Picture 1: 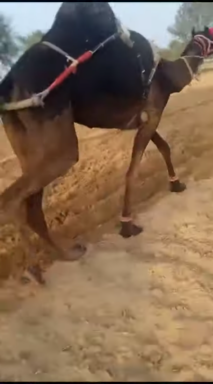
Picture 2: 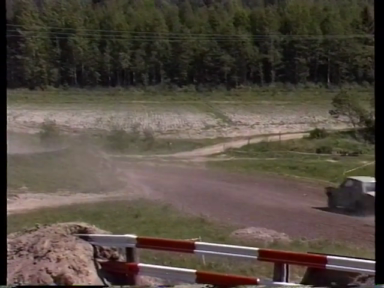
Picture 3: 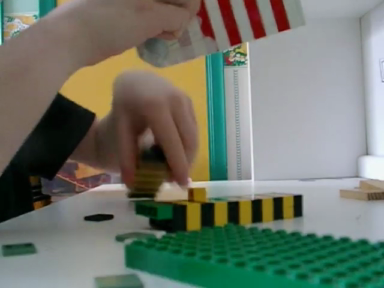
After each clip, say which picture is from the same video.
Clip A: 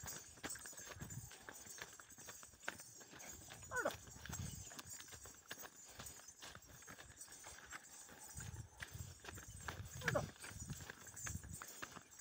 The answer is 1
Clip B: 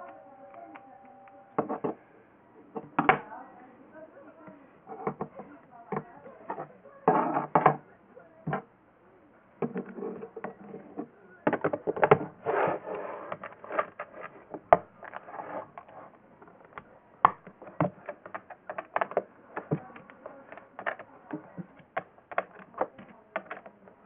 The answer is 3